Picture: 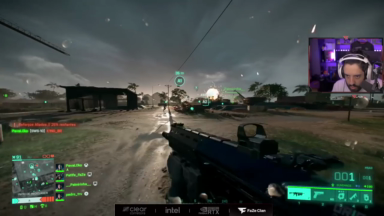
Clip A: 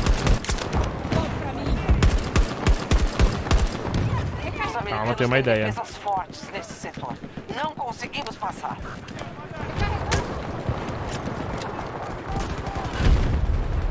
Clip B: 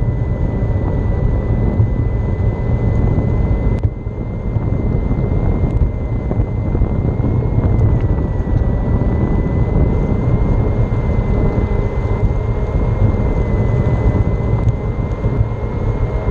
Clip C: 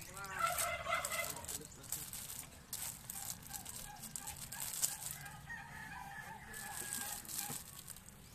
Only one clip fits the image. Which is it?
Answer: A